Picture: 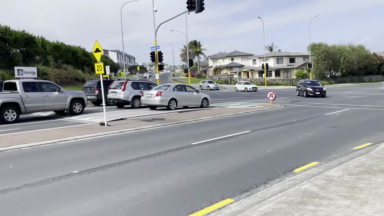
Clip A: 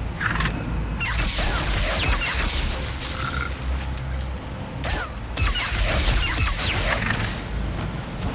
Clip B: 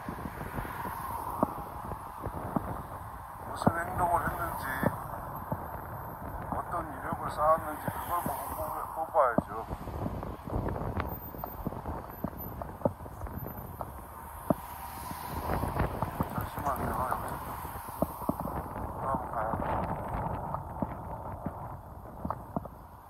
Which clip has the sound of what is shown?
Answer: B